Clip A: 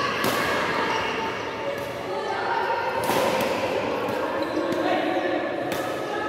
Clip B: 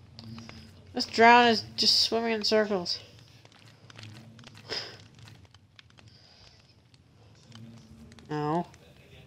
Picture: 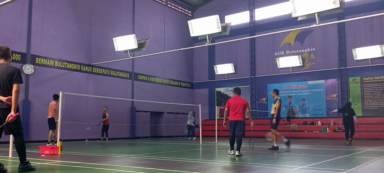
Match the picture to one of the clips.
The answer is A